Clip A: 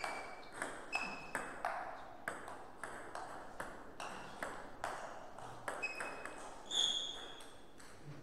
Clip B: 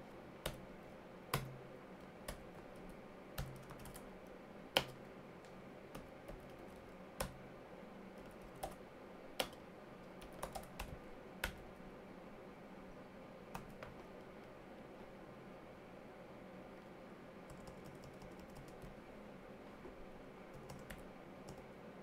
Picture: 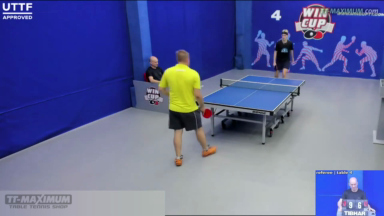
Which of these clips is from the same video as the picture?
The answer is A